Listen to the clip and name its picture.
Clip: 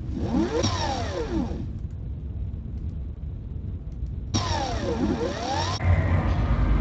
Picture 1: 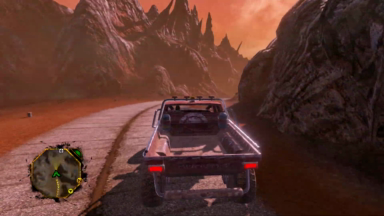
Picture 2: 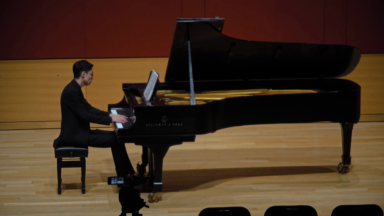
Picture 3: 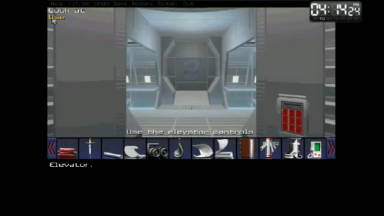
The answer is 3